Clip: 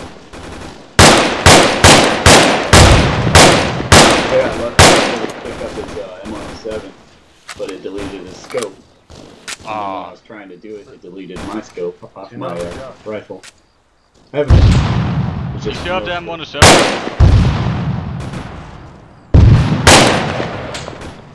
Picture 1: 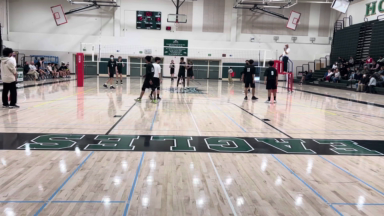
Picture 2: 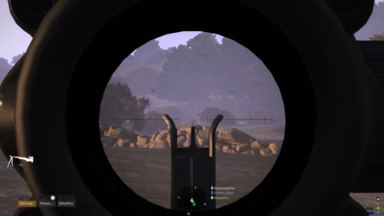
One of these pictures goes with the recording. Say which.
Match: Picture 2